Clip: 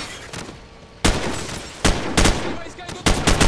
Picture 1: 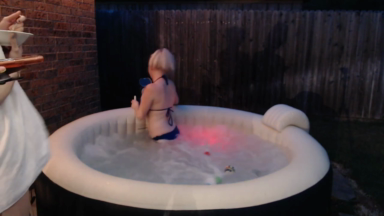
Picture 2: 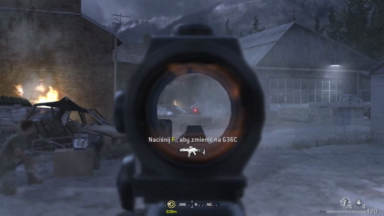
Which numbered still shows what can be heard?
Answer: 2